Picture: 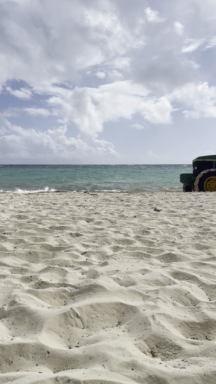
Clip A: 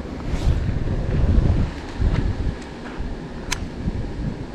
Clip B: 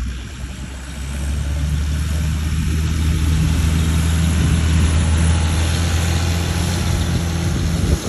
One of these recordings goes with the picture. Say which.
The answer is B